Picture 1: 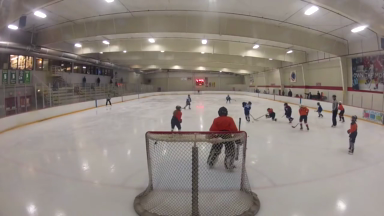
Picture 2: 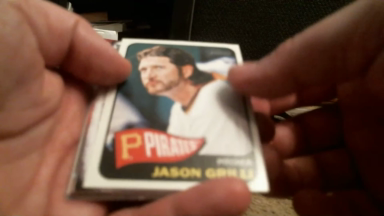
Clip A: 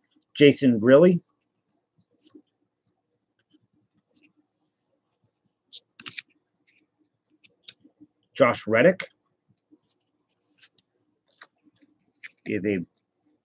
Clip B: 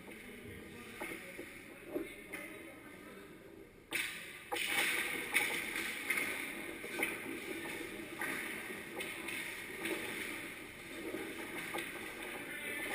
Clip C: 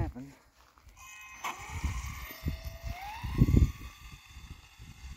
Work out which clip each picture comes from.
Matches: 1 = B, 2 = A